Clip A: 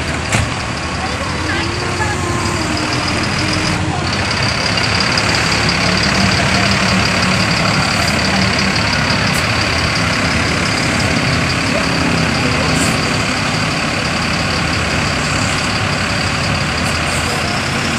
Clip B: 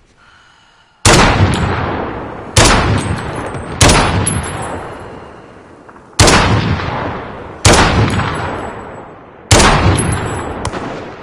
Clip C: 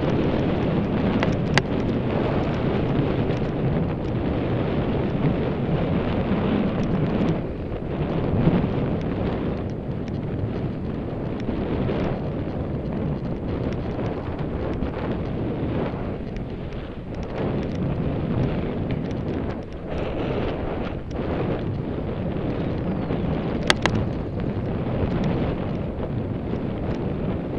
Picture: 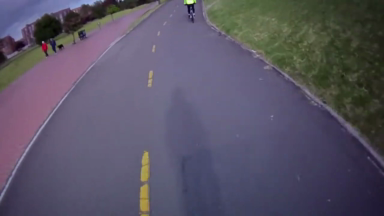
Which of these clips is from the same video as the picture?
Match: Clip C